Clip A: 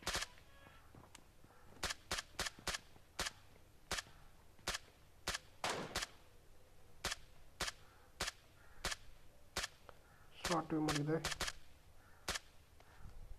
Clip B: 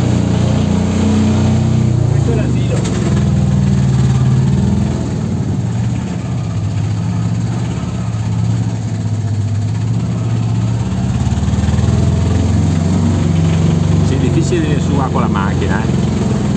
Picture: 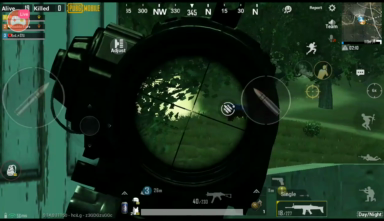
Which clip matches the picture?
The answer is A